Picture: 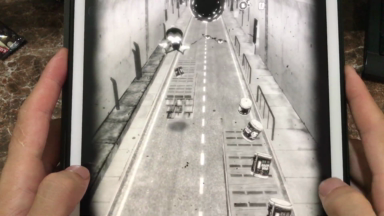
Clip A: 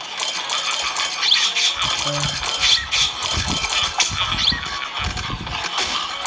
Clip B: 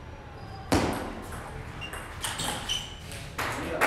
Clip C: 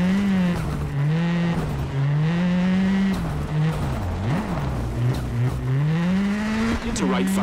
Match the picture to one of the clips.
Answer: A